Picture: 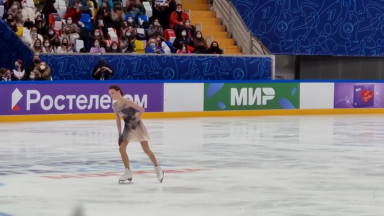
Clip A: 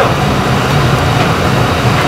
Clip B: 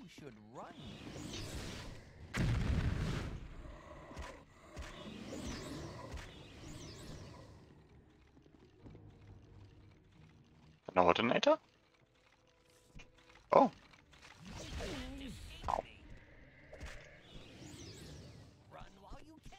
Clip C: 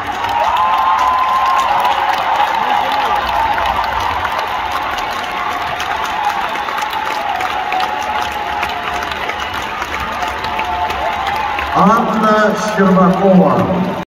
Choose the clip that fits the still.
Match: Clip C